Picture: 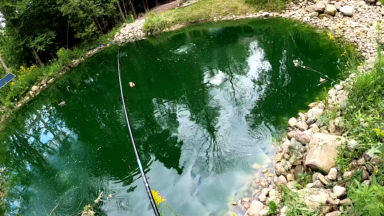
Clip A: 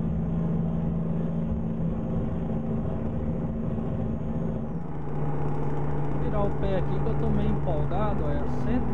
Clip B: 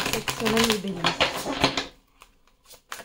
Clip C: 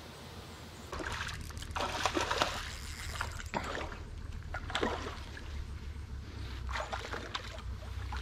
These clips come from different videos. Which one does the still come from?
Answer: C